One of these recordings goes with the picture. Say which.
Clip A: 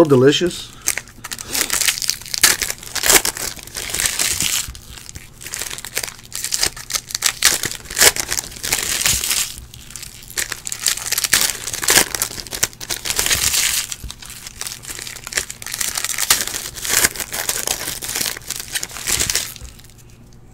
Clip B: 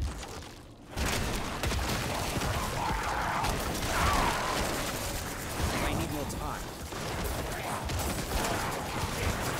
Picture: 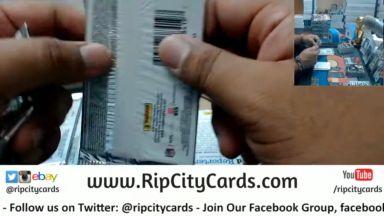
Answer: A